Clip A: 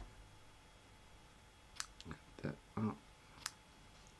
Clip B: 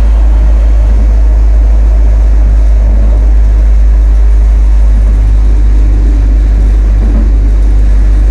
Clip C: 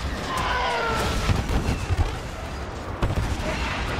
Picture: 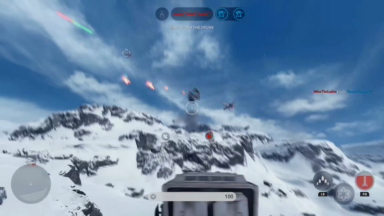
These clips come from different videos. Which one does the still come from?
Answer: C